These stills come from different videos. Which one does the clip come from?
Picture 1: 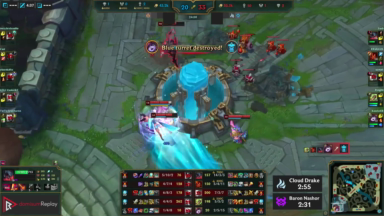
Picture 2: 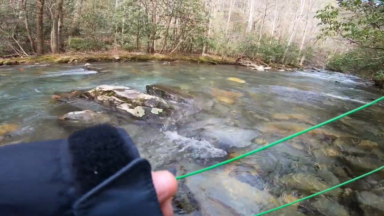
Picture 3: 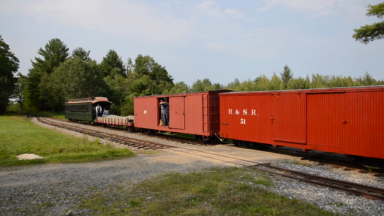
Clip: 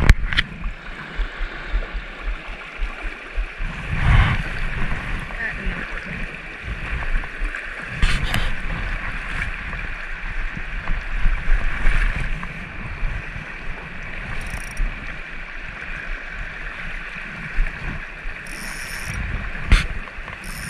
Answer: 2